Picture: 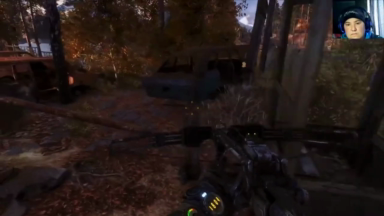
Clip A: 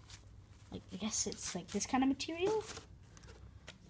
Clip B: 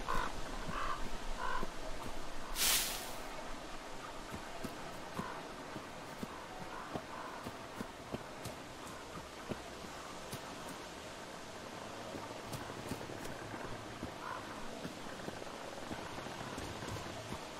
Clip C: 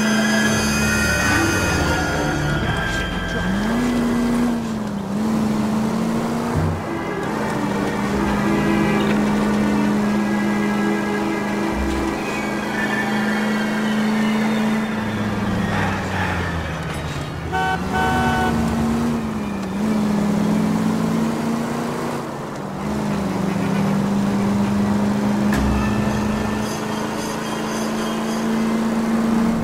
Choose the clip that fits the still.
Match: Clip B